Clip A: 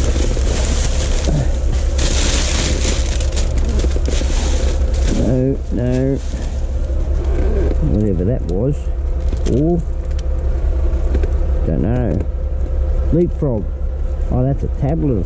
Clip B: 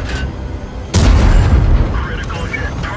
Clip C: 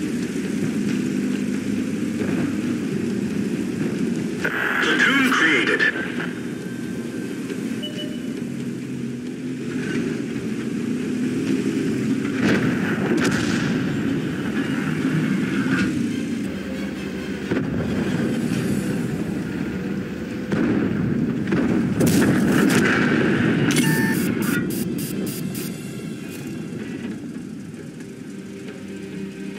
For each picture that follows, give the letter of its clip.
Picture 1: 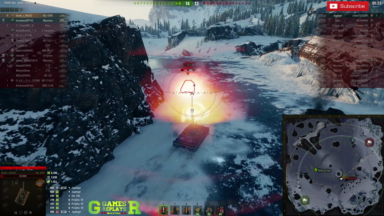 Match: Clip B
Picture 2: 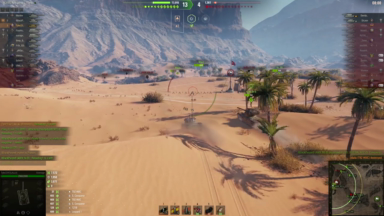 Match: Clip C